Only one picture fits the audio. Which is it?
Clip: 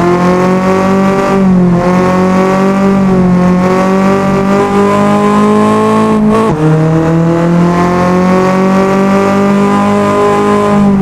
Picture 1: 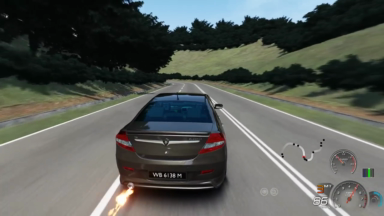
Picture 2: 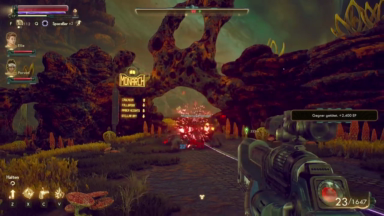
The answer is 1